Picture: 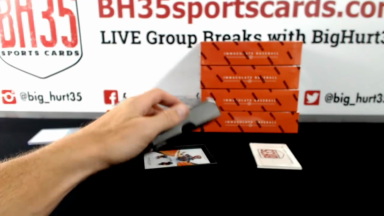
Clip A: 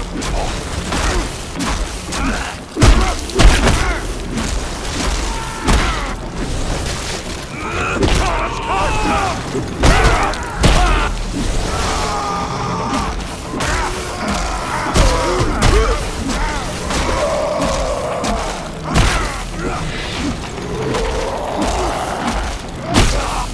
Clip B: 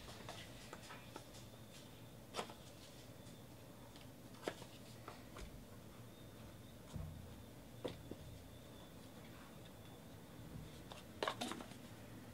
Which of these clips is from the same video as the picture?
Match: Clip B